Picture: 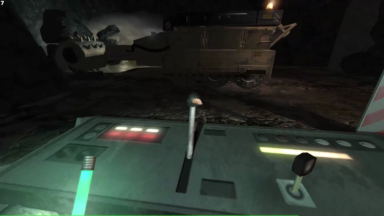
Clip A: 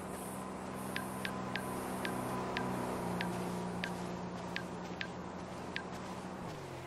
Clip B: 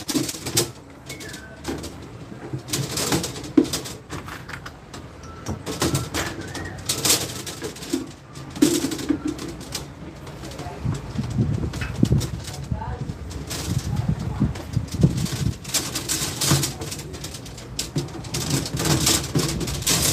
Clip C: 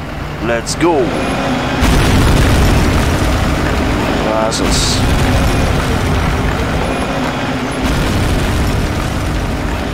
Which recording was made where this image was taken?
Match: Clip C